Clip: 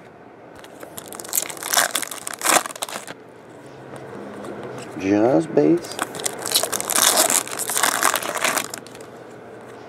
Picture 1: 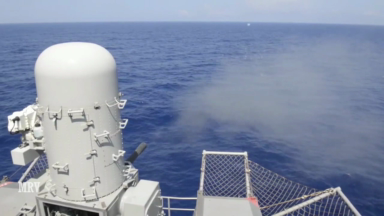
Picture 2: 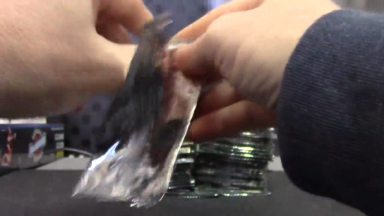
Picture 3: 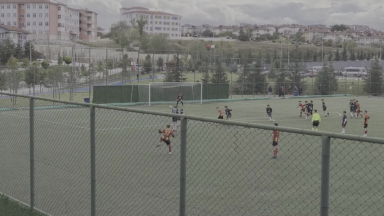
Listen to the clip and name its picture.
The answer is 2